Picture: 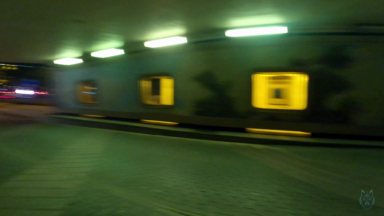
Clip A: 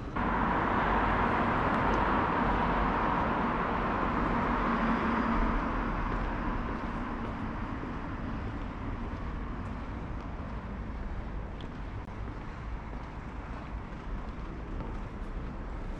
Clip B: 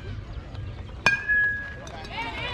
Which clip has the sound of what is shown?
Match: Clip A